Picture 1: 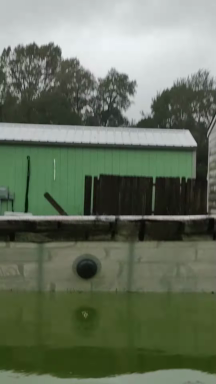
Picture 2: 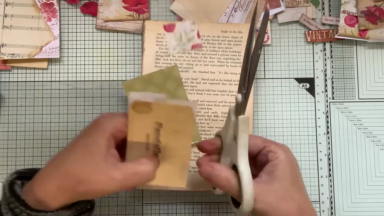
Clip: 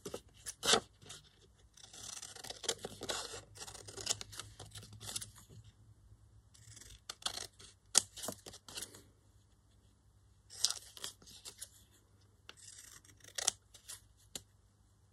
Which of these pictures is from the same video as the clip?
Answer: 2